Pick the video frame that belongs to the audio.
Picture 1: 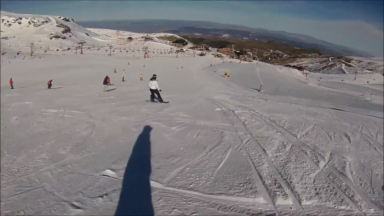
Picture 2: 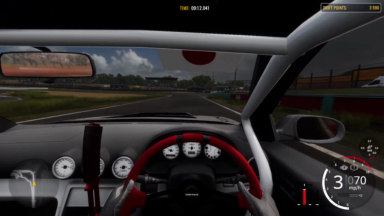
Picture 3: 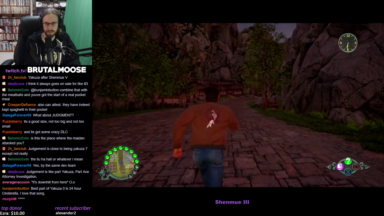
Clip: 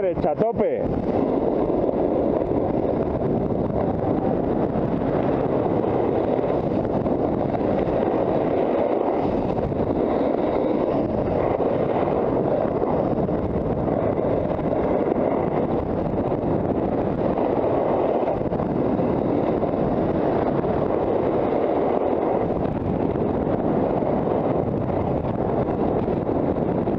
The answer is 1